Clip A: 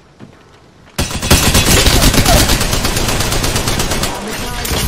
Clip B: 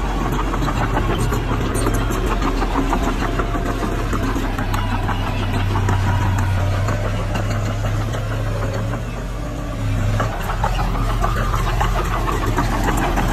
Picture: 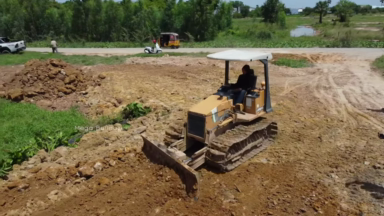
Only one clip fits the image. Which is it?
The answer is B